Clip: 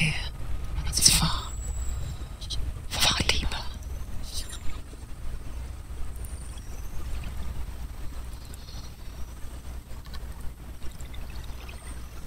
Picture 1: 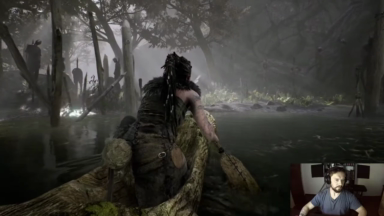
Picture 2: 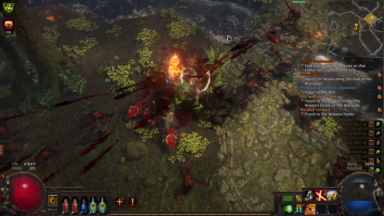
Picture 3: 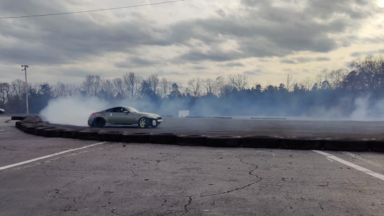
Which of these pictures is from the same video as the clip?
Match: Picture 1